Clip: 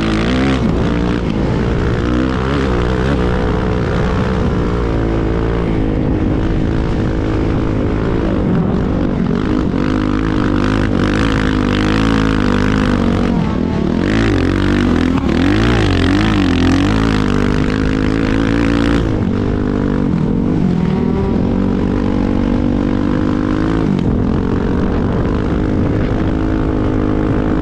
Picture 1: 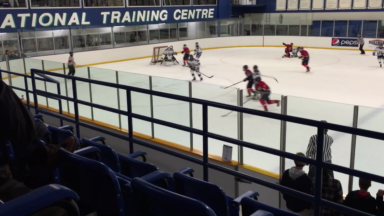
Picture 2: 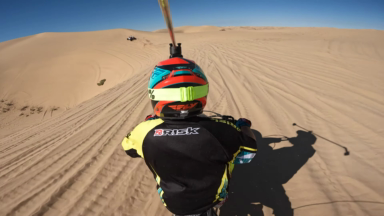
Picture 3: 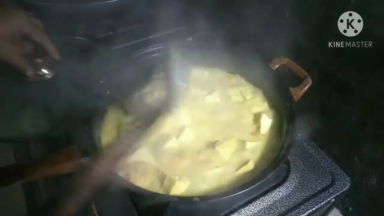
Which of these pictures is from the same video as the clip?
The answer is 2